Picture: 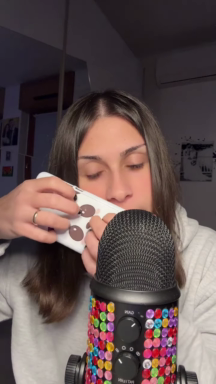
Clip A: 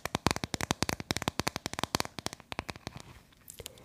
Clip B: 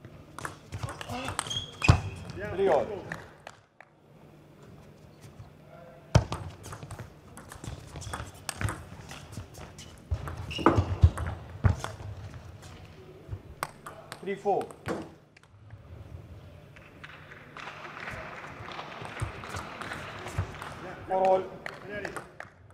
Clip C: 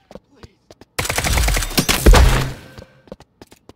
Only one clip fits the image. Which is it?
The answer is A